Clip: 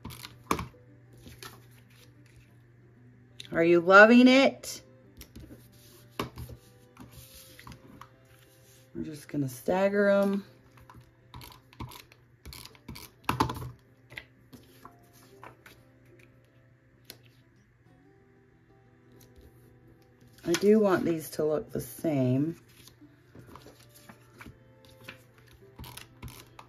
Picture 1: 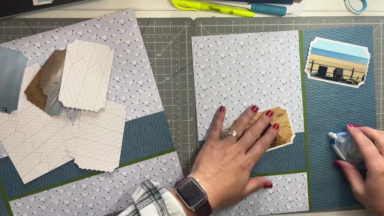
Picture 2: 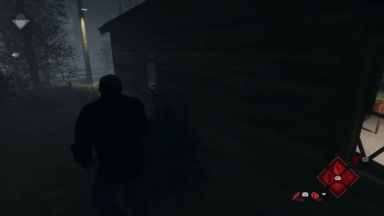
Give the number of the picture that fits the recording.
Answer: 1